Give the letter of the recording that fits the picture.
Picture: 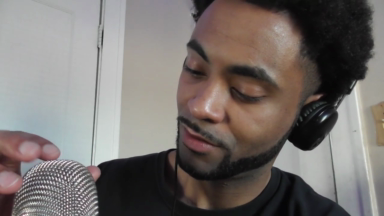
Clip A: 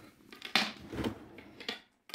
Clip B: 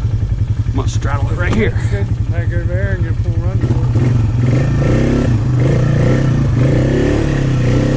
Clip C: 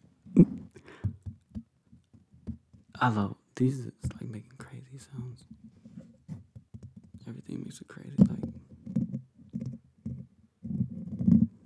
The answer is C